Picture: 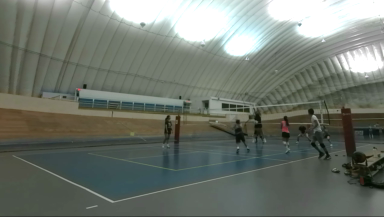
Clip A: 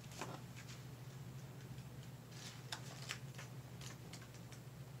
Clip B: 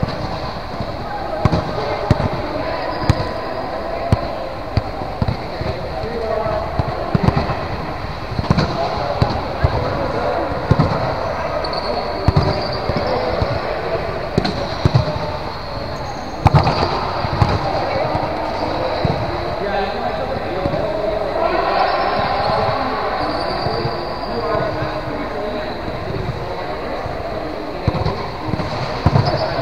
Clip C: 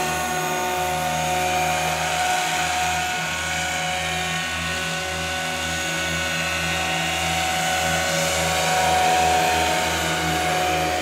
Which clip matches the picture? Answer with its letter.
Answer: B